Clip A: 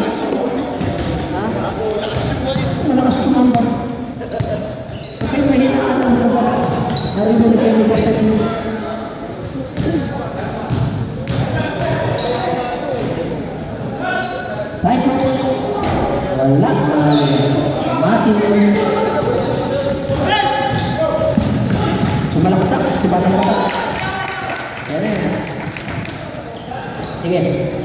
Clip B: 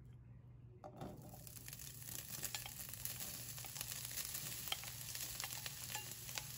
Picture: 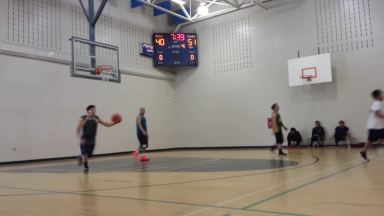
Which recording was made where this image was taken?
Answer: A